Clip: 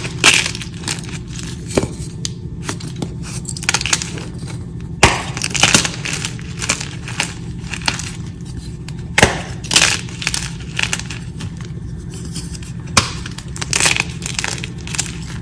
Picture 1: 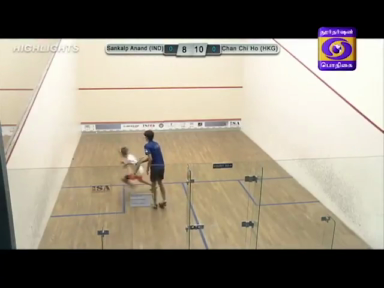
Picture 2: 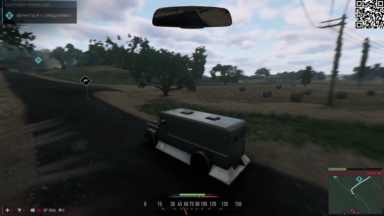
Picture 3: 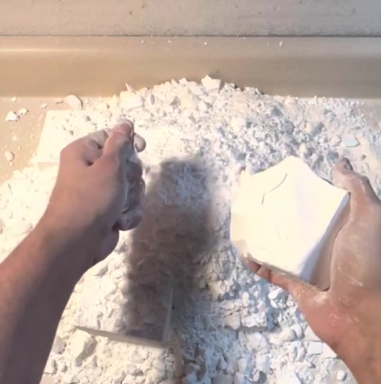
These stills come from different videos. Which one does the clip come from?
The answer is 3